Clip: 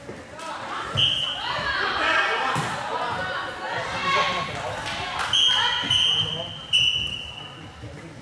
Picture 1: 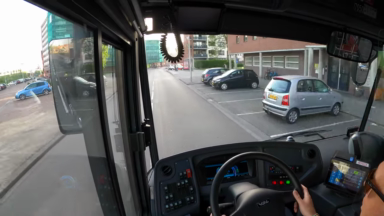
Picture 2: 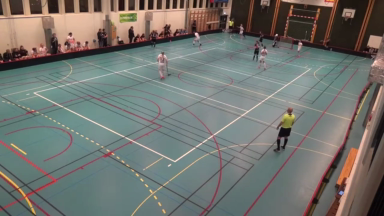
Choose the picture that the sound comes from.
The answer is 2